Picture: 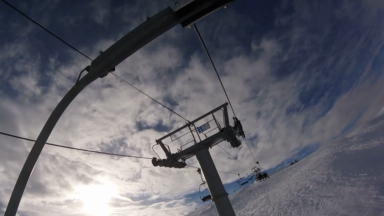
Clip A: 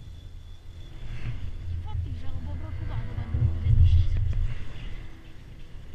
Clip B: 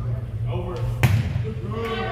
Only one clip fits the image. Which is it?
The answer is A